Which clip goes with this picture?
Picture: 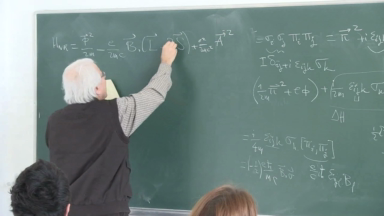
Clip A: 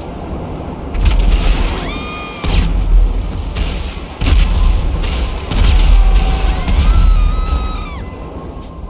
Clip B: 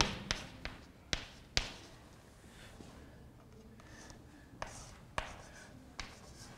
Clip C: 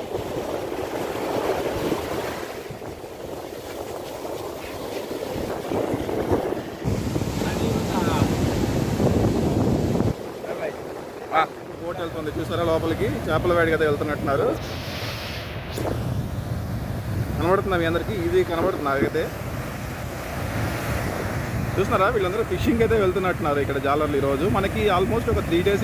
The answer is B